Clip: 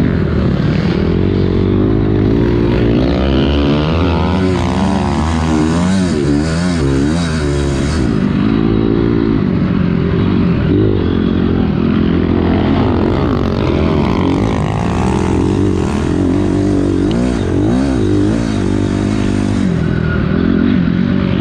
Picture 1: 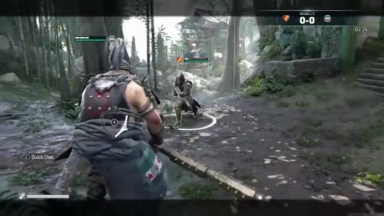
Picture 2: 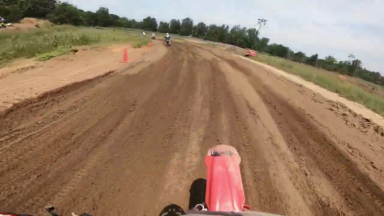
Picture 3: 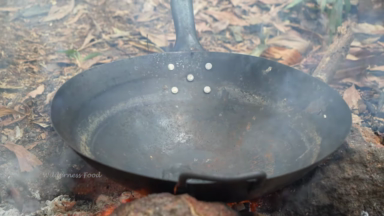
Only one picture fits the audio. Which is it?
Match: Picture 2